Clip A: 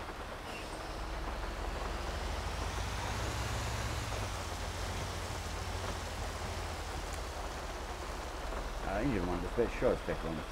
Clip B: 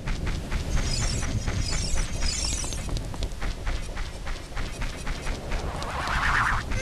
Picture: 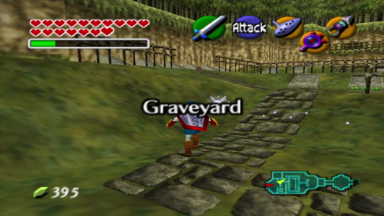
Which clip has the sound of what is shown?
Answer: B